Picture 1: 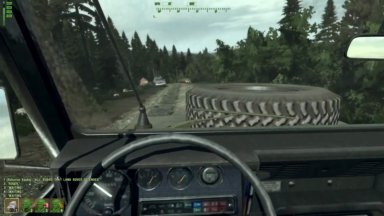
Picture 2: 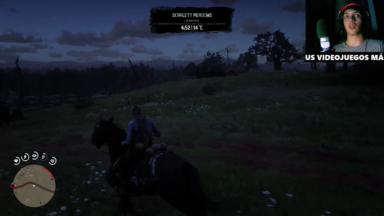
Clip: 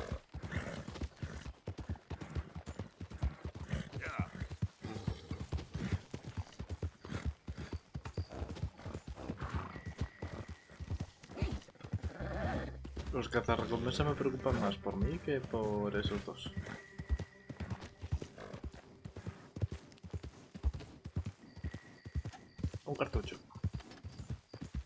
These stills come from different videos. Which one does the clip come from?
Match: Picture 2